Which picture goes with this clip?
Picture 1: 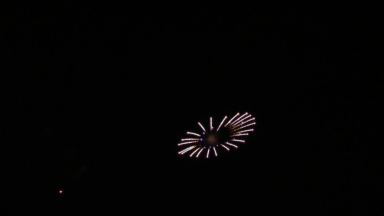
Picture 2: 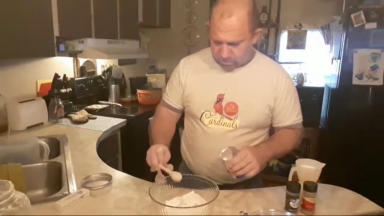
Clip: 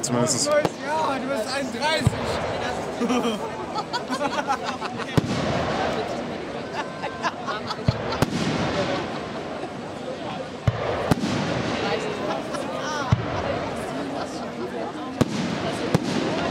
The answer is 1